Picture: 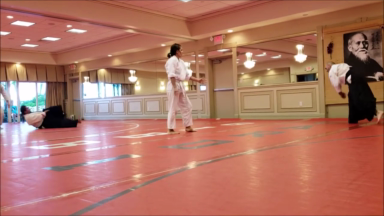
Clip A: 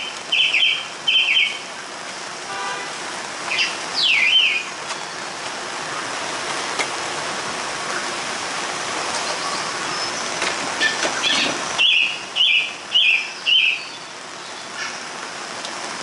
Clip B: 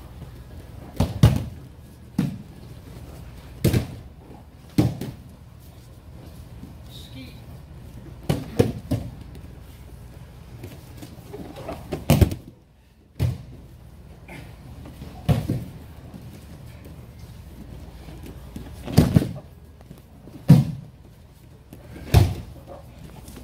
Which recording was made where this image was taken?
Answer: B